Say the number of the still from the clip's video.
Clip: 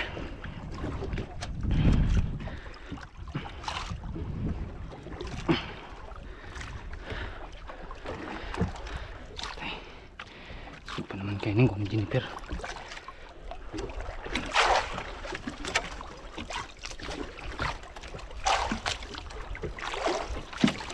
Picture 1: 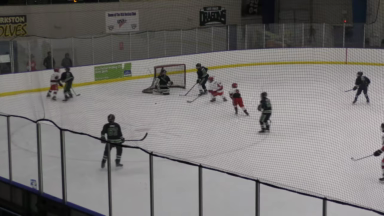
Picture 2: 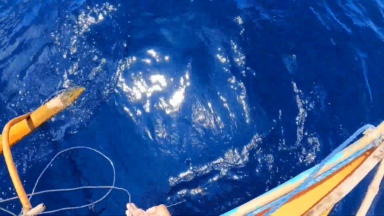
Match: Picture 2